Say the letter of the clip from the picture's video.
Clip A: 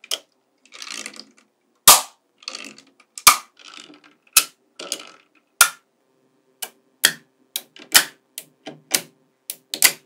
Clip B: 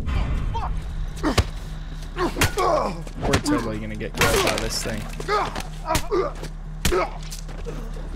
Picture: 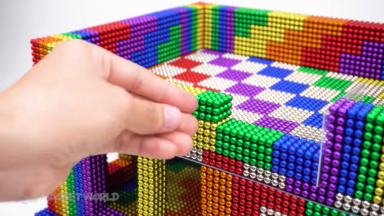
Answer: A